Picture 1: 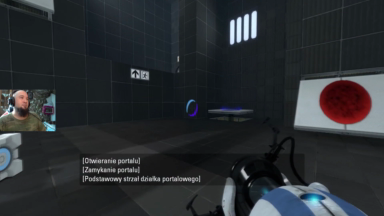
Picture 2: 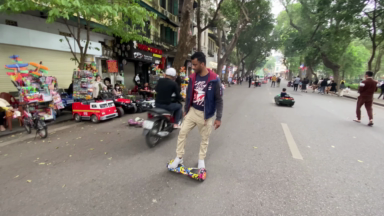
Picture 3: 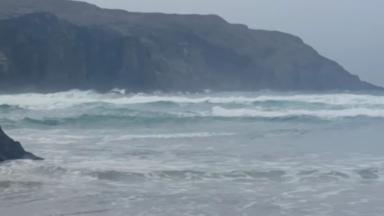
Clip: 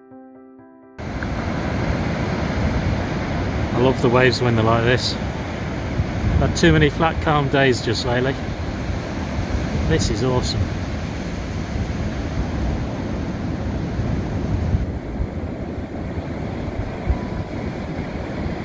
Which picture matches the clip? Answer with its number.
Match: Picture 3